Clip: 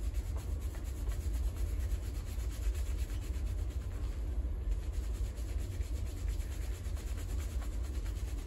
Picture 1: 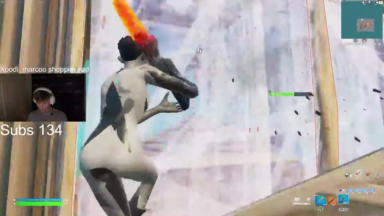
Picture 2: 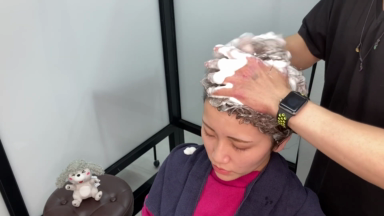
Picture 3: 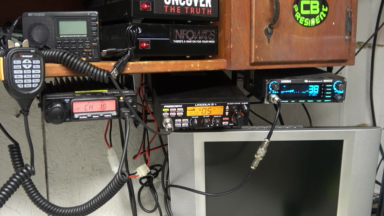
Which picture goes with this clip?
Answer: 2